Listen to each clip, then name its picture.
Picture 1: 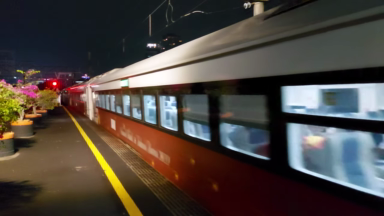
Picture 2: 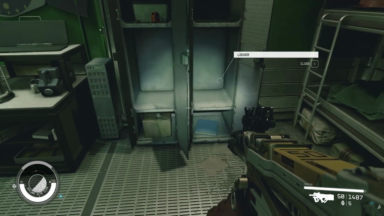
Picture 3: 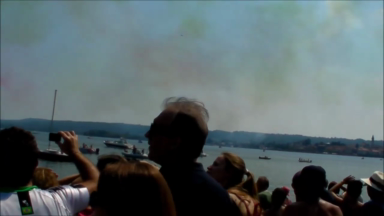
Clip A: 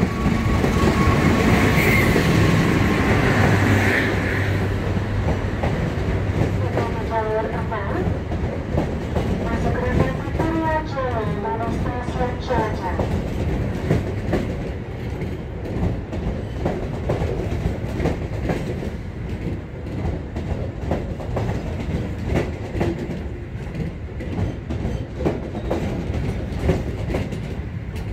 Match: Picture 1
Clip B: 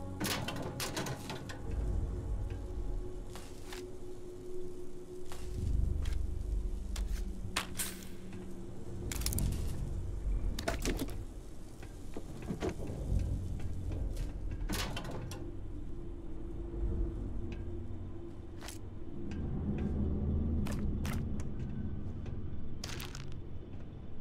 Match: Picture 2